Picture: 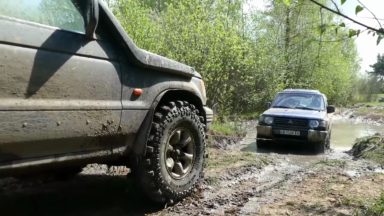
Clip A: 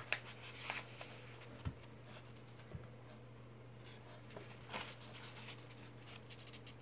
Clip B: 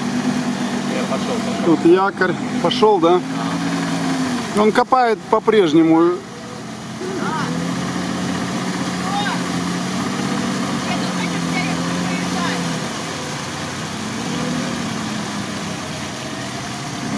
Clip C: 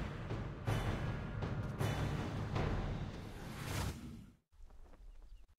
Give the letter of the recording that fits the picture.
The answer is B